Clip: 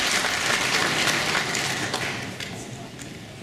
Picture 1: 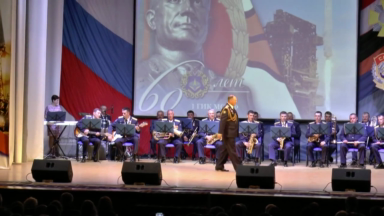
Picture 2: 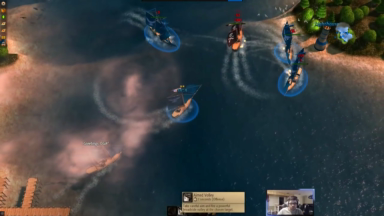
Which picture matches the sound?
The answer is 1